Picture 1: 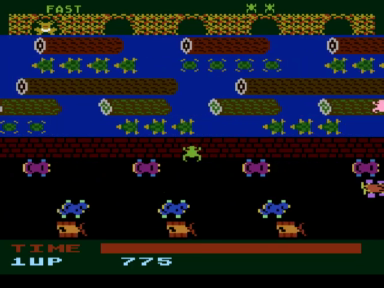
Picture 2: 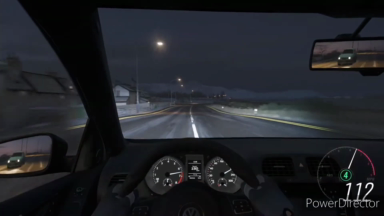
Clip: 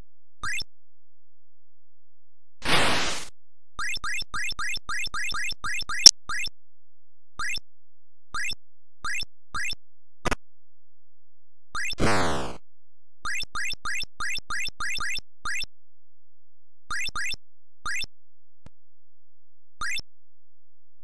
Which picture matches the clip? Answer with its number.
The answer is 1